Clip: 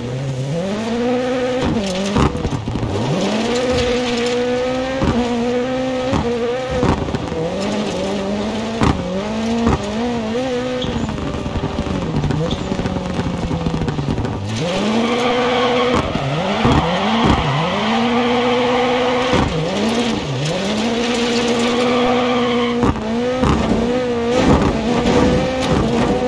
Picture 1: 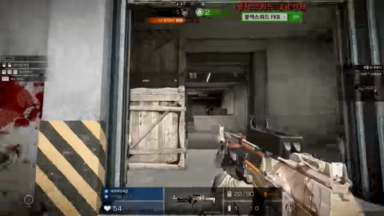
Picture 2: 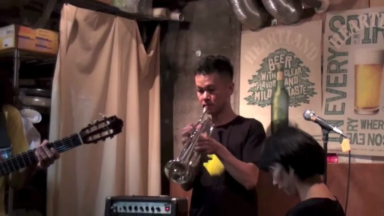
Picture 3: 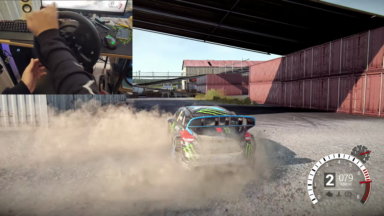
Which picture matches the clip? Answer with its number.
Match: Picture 3